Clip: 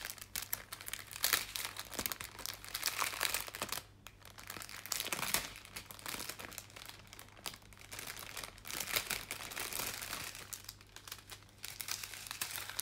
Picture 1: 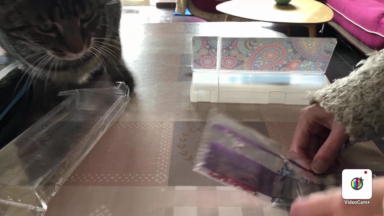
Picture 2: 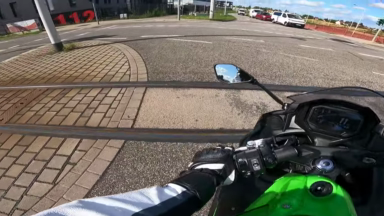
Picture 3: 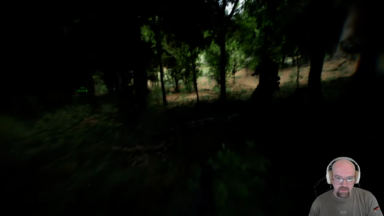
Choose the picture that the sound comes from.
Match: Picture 1